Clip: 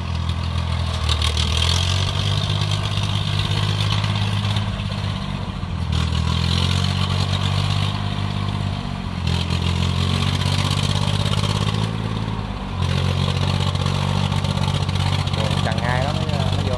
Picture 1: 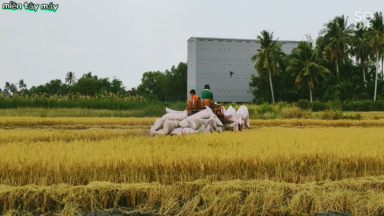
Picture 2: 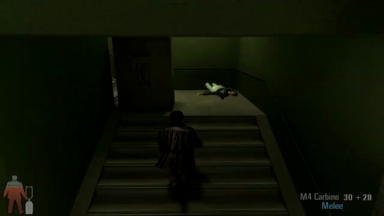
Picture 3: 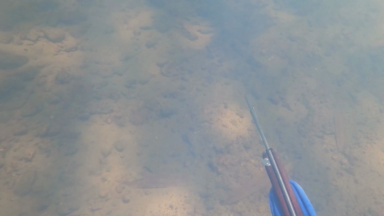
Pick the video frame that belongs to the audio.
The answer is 1